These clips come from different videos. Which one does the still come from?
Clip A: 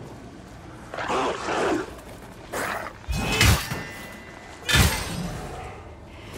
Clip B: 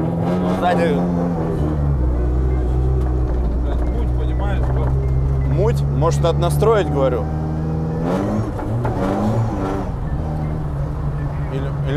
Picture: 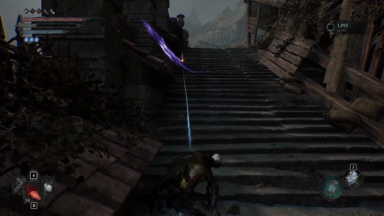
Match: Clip A